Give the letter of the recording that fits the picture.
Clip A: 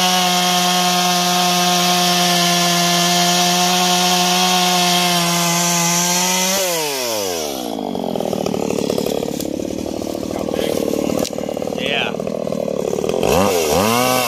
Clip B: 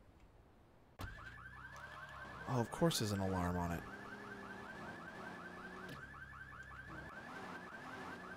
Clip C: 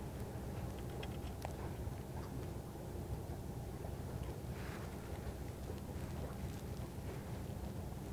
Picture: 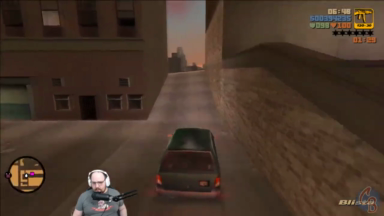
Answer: B